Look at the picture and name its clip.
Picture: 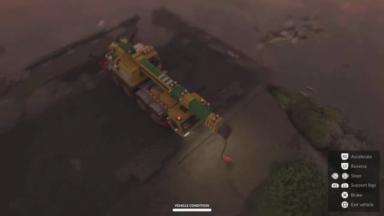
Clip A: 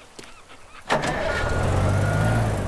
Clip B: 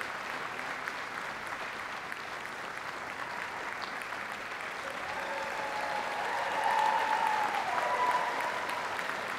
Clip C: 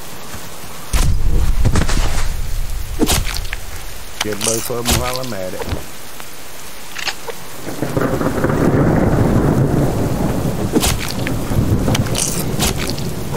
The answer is A